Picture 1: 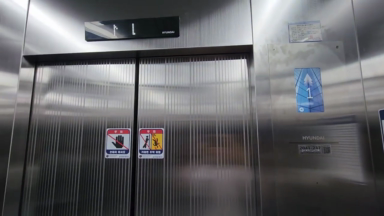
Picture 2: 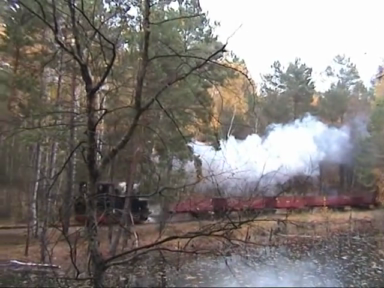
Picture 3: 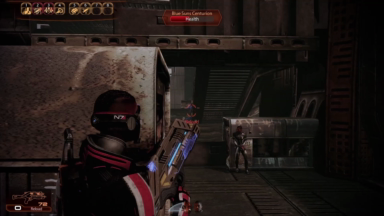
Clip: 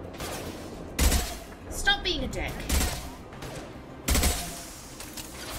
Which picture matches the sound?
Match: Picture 3